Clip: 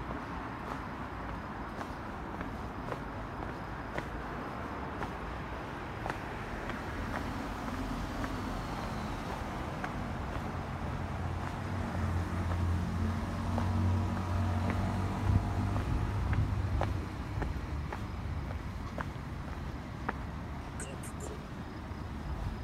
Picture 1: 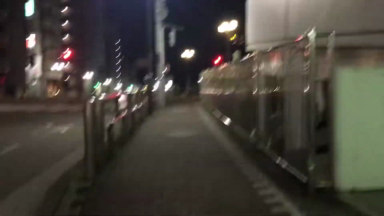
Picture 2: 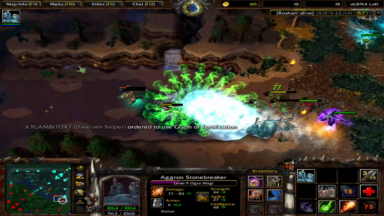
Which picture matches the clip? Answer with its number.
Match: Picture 1